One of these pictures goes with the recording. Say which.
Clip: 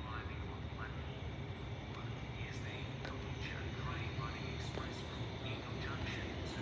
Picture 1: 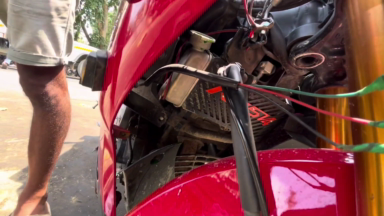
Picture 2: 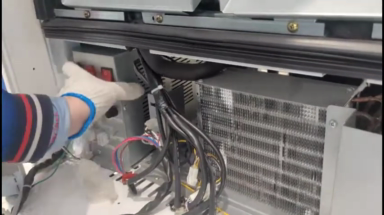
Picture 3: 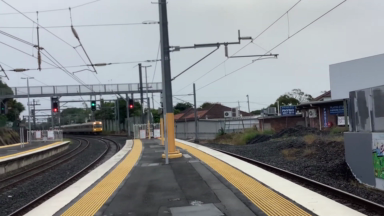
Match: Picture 3